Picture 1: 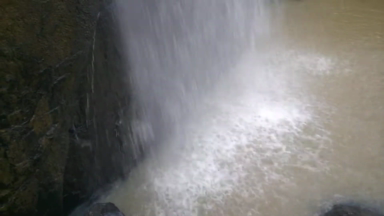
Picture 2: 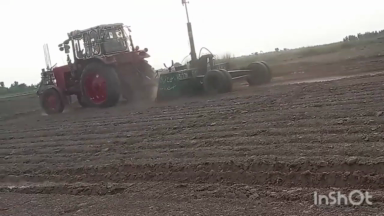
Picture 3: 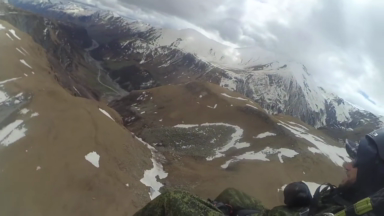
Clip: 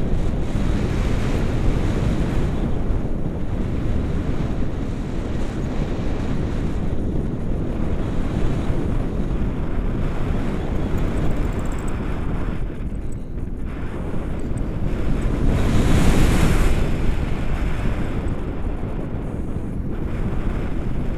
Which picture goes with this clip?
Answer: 3